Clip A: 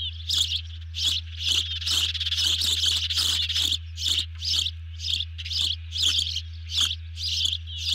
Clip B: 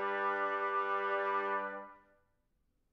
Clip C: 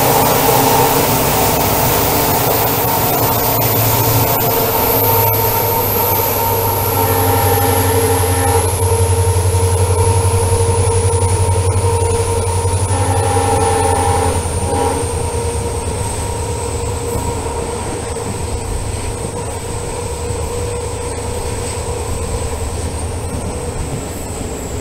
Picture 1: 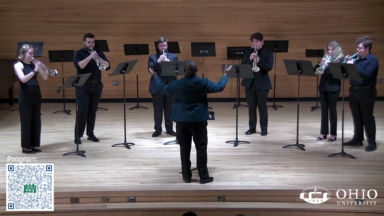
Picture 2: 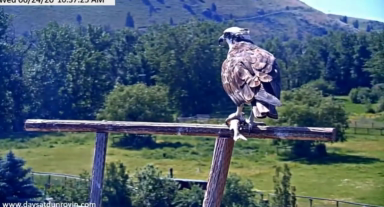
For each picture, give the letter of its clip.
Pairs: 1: B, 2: A